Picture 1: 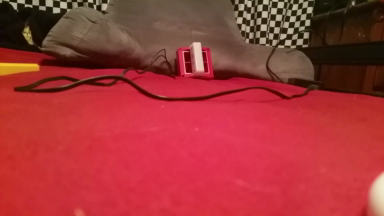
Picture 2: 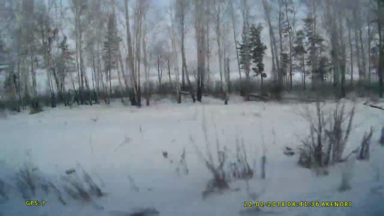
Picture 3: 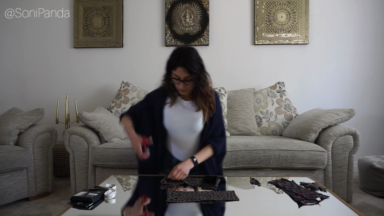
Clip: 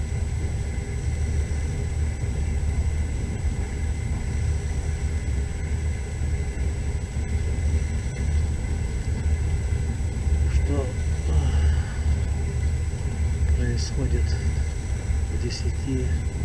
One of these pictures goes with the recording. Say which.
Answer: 2